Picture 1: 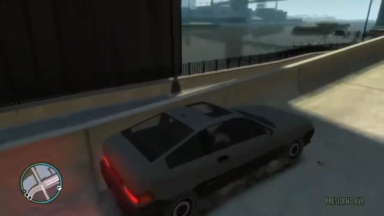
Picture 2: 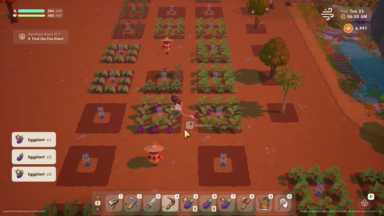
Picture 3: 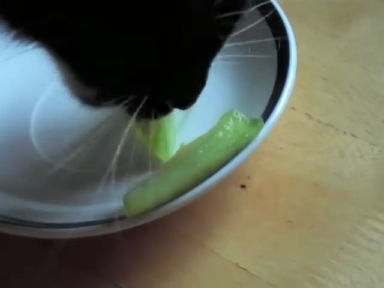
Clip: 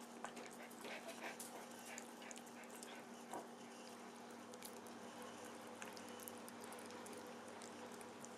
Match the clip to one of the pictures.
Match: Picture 3